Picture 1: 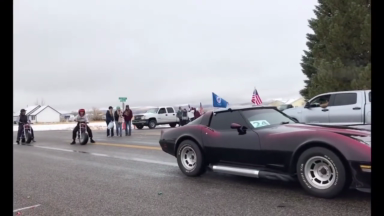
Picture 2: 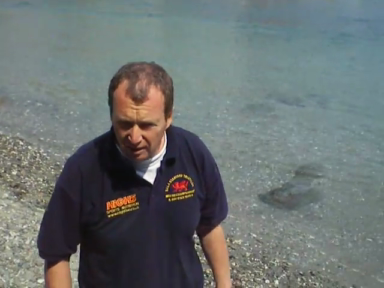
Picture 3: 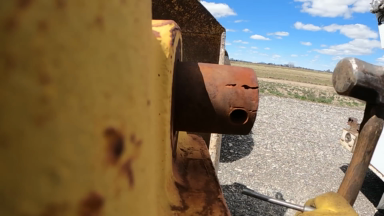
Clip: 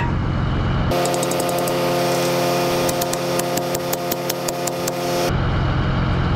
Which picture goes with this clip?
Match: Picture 3